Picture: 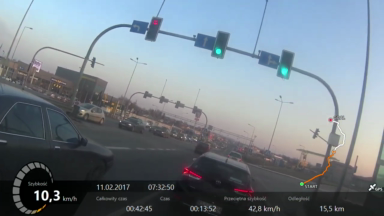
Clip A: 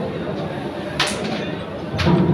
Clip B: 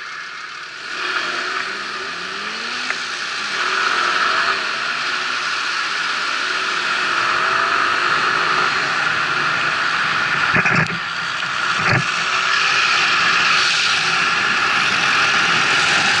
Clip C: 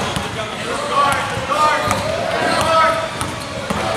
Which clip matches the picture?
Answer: B